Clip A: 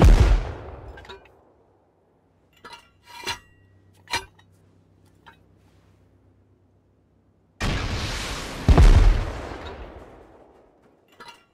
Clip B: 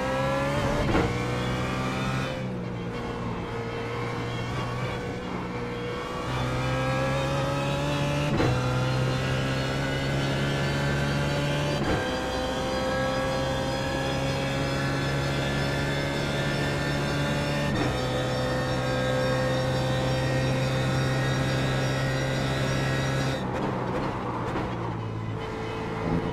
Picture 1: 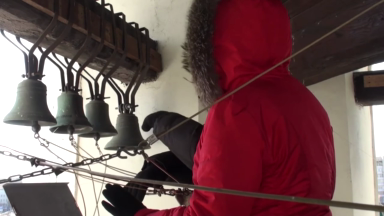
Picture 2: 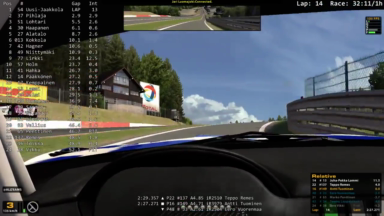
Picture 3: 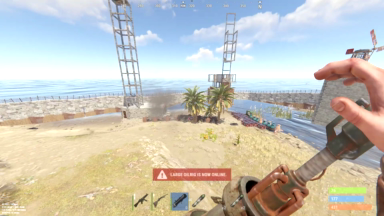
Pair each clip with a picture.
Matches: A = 3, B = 2